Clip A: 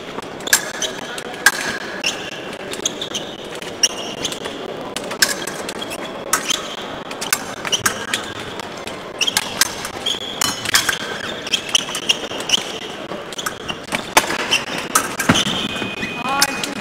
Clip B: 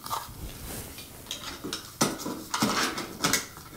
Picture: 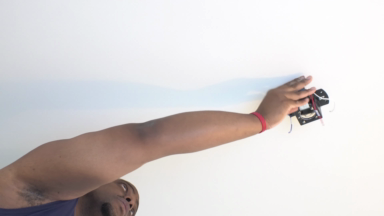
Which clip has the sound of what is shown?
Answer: B